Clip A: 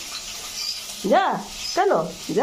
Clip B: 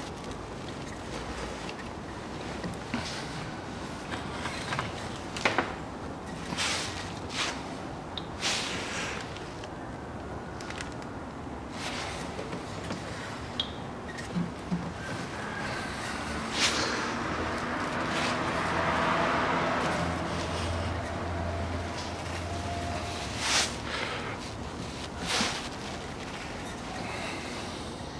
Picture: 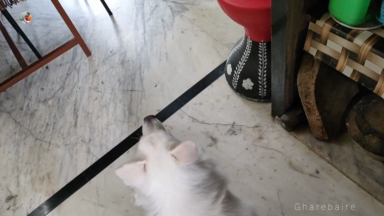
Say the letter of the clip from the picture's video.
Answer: A